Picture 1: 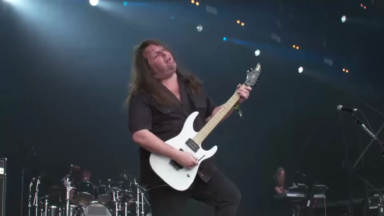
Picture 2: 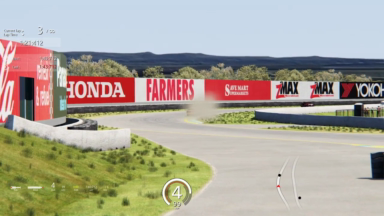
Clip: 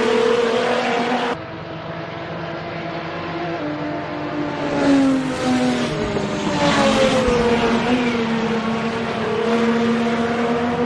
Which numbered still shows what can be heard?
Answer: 2